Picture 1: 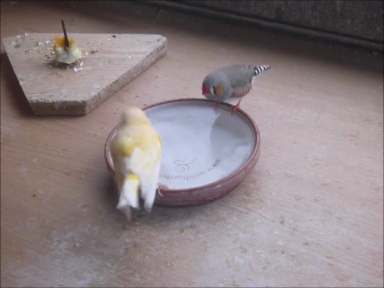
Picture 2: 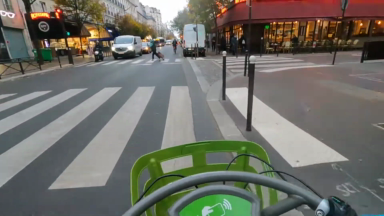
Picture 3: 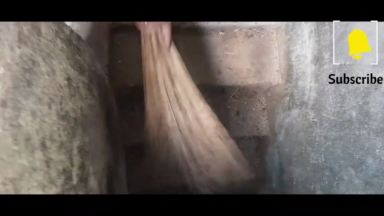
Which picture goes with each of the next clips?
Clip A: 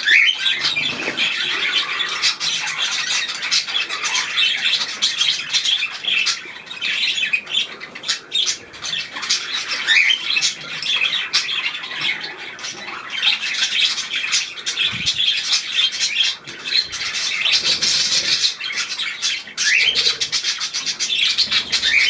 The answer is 1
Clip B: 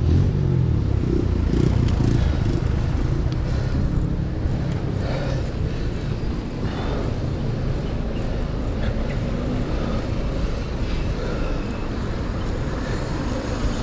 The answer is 2